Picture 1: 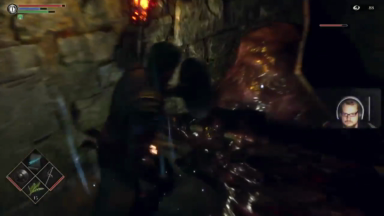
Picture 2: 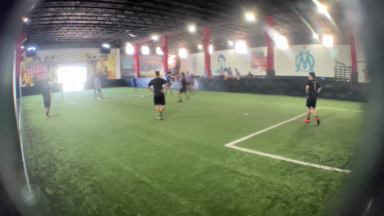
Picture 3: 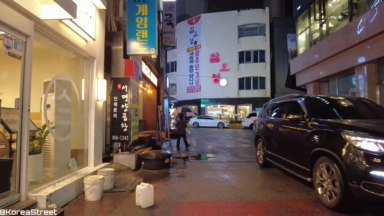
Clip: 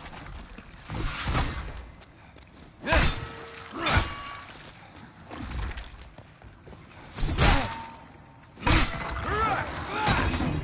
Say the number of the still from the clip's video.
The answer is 1